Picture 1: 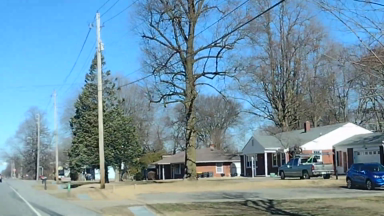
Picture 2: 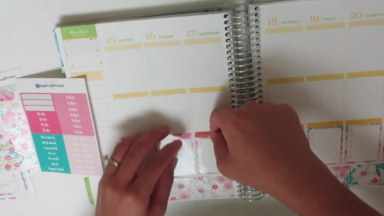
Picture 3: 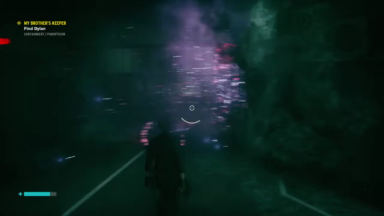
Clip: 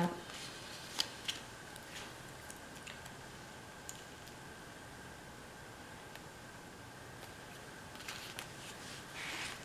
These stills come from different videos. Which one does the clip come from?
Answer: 2